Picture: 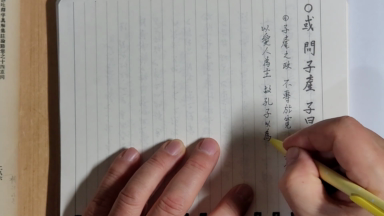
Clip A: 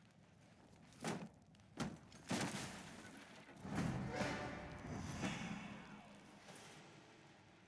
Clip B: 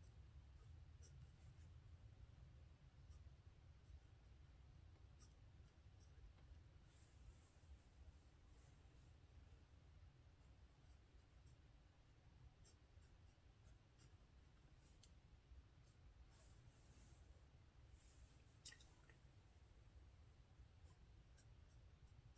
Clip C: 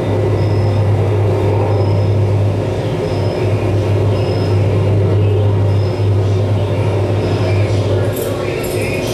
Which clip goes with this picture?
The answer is B